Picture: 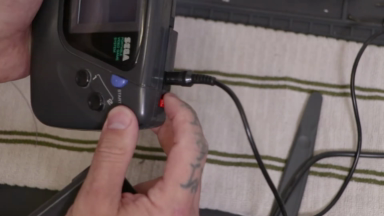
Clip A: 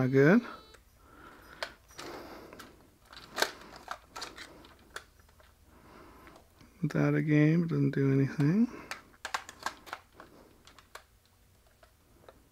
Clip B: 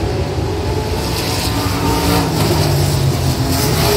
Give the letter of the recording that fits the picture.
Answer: A